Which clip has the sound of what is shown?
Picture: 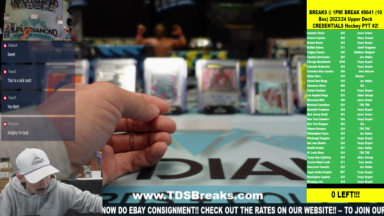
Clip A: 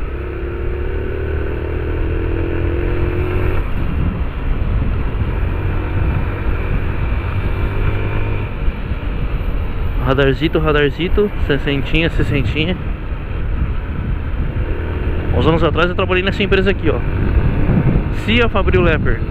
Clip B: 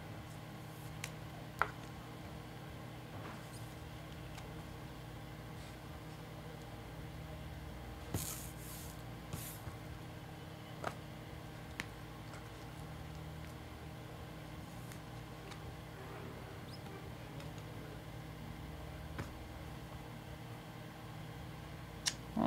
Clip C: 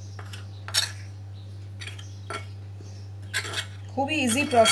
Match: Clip B